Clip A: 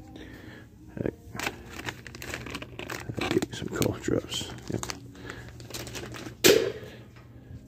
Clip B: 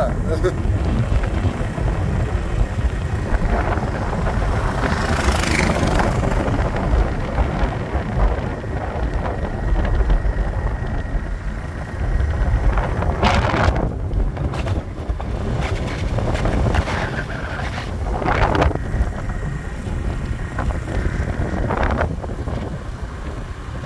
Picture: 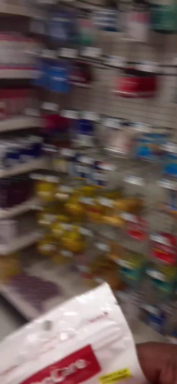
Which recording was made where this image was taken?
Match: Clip A